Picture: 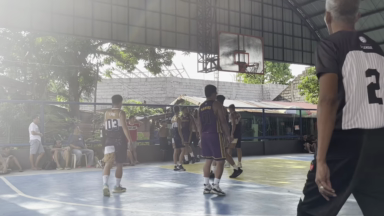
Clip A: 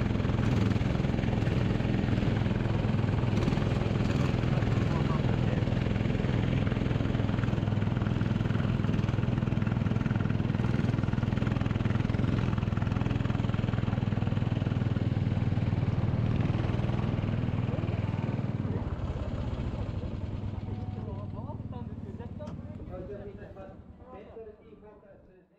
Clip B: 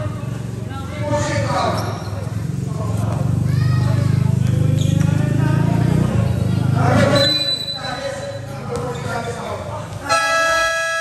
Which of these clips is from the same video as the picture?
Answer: B